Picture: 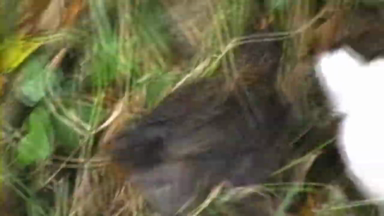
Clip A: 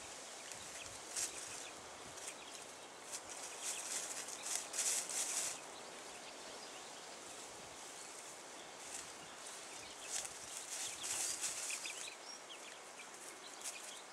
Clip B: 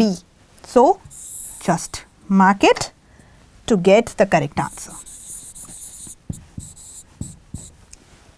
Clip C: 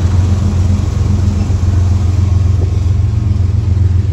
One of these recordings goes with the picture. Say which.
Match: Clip A